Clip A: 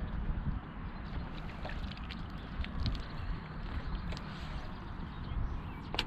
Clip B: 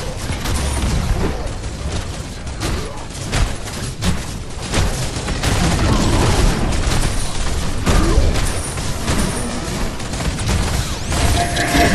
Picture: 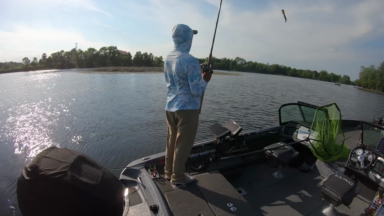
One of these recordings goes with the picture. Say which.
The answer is A